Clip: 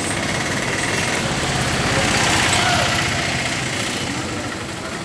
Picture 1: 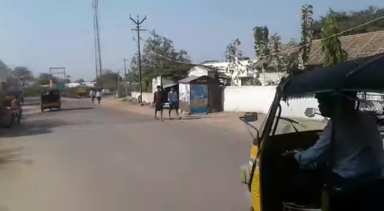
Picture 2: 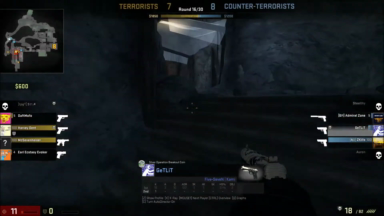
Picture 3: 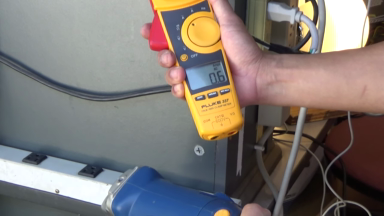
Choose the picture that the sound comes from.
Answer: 1